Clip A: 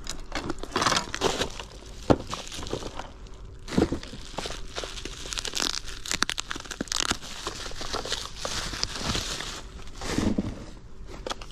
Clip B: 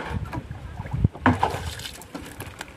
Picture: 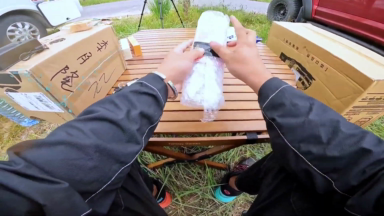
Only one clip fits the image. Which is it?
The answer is A